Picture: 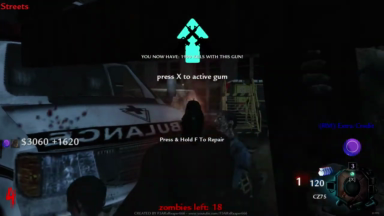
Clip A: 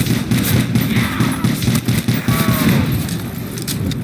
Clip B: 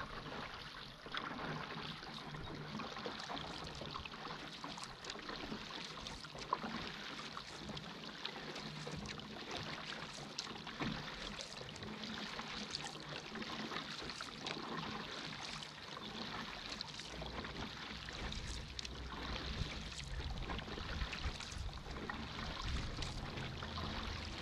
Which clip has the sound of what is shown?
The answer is A